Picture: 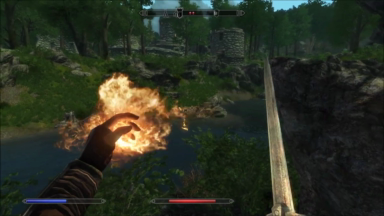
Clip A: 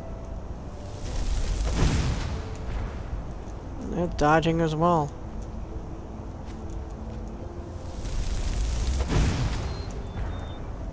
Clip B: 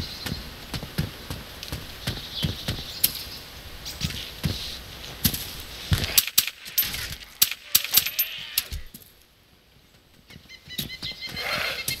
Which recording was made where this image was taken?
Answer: A